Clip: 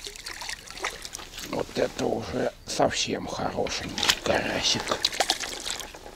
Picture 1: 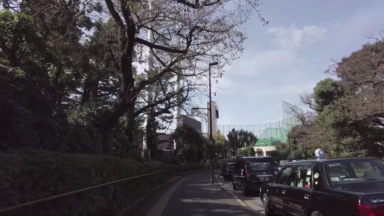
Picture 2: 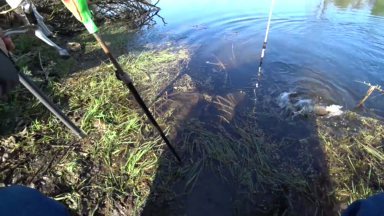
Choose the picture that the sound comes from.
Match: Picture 2